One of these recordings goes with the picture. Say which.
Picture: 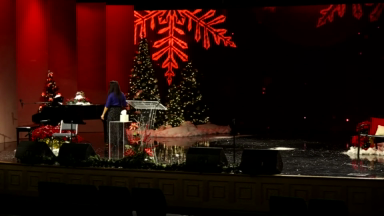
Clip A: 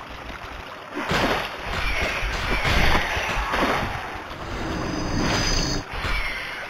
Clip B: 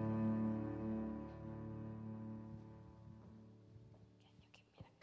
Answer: B